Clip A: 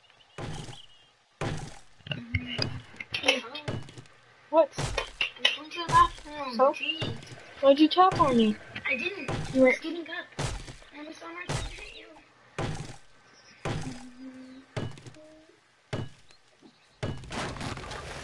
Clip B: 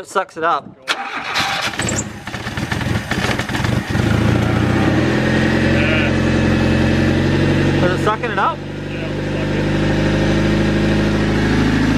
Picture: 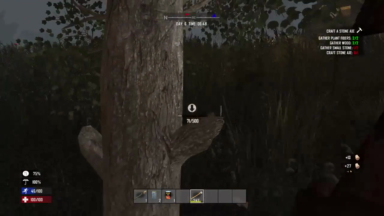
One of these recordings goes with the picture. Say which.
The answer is A